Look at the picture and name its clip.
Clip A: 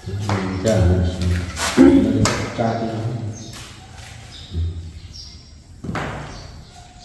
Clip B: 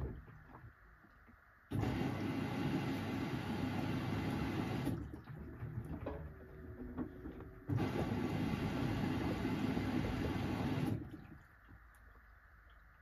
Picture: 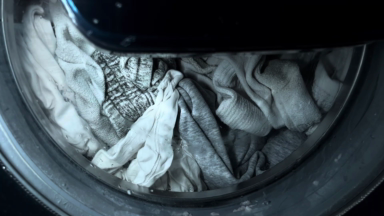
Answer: B